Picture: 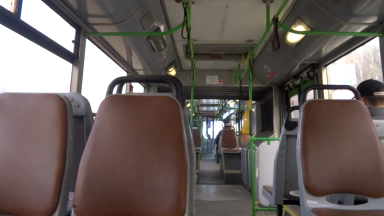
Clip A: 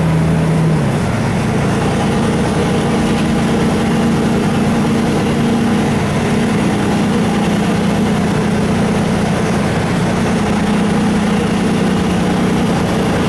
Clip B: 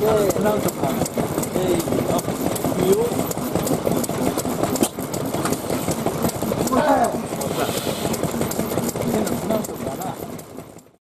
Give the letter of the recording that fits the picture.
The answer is A